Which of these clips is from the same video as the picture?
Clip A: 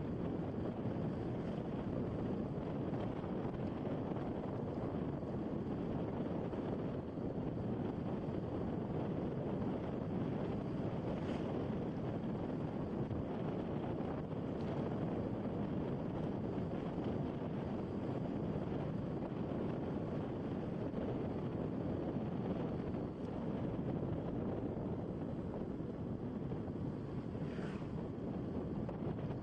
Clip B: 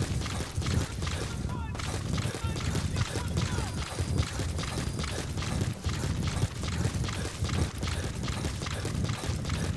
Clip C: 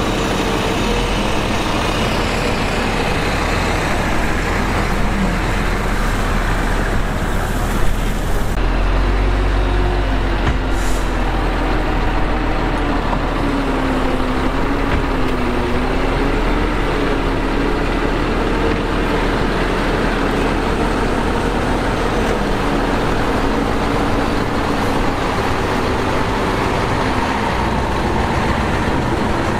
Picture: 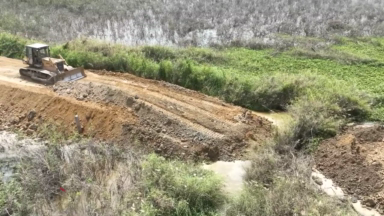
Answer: C